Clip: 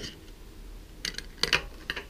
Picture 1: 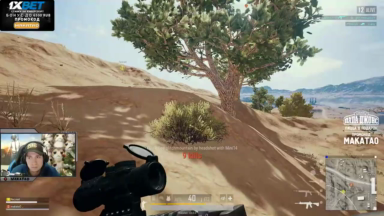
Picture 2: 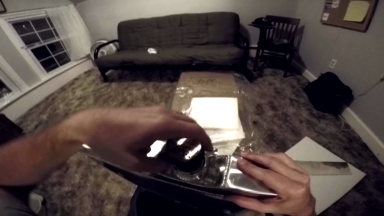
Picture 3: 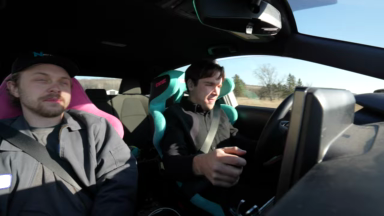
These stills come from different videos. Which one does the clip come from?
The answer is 2